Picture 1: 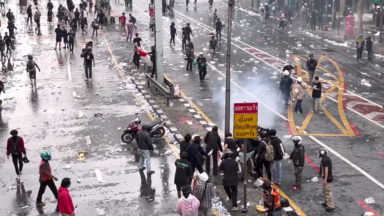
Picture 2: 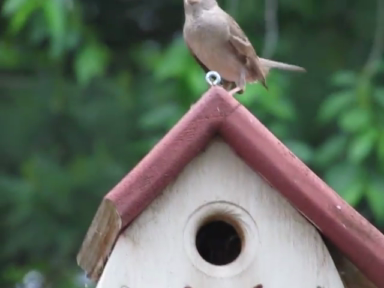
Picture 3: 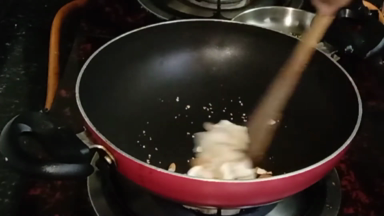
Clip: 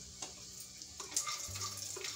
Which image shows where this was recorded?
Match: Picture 3